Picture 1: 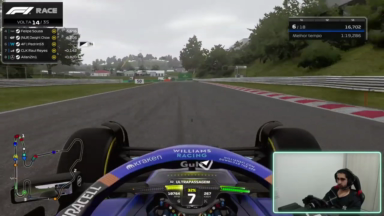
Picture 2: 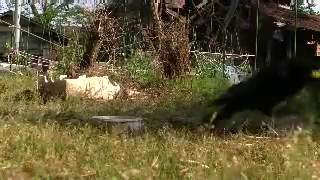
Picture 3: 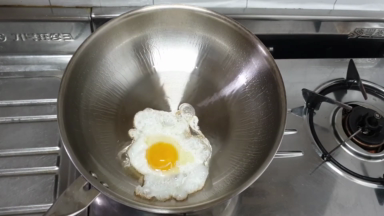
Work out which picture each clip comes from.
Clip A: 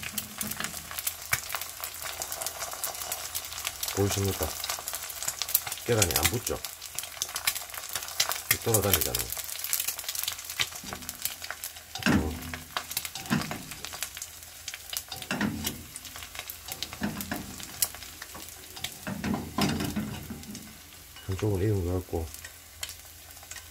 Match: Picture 3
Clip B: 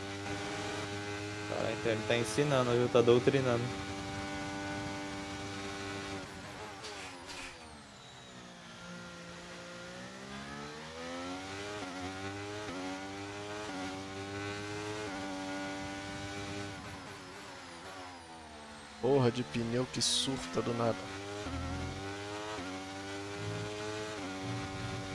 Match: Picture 1